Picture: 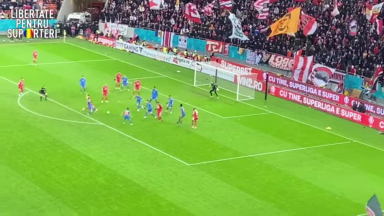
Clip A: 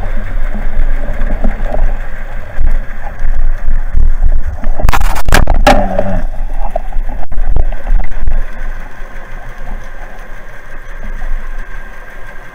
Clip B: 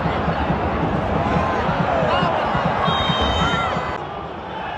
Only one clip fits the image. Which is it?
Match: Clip B